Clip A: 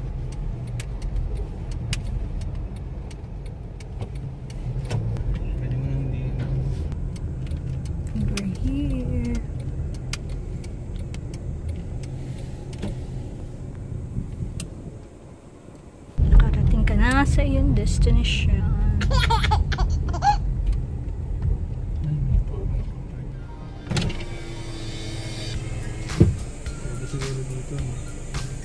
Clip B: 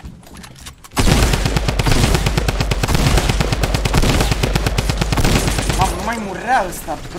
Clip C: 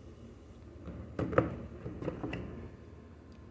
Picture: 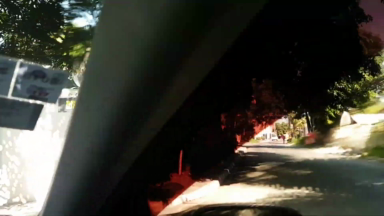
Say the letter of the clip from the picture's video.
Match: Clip A